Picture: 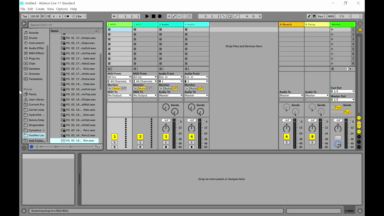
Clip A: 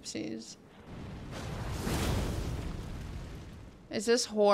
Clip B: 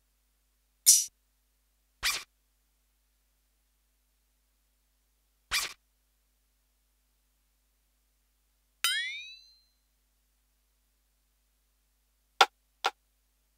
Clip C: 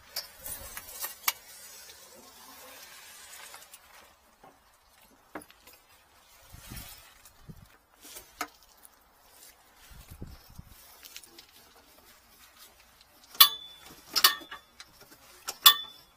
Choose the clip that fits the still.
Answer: B